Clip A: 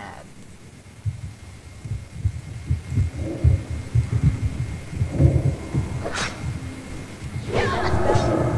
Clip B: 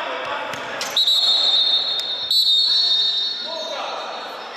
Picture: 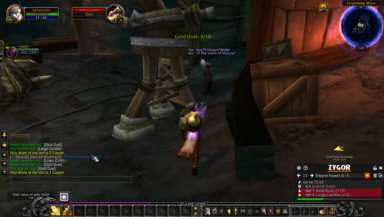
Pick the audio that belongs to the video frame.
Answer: A